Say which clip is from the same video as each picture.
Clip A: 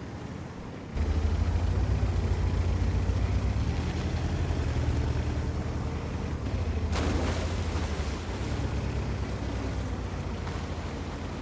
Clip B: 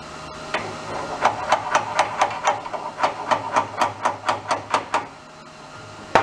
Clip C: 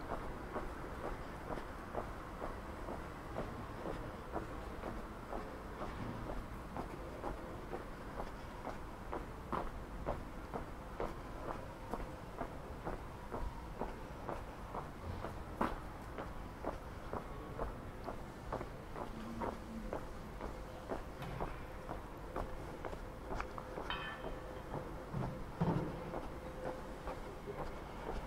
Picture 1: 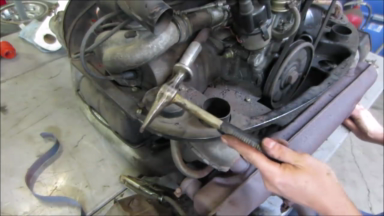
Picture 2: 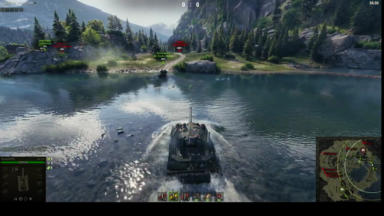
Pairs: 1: B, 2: A